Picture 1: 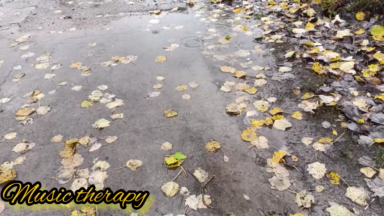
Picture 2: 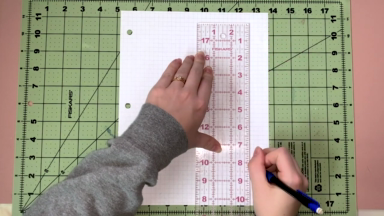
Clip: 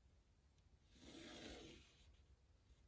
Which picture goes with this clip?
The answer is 2